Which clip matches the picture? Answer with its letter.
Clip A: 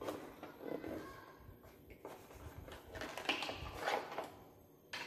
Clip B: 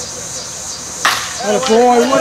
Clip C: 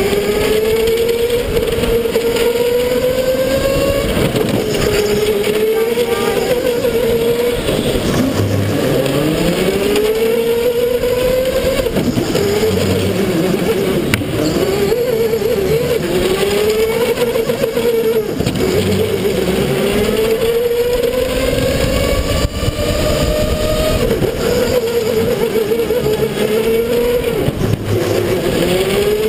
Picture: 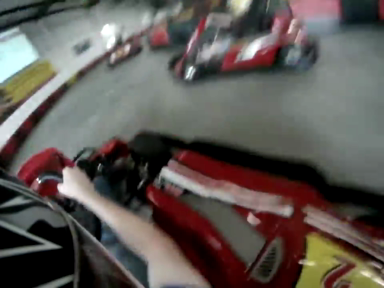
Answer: C